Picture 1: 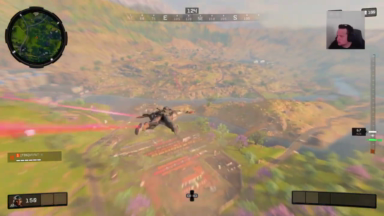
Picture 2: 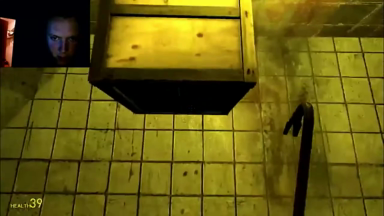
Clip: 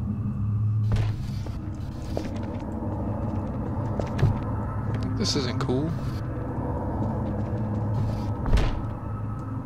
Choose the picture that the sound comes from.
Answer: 2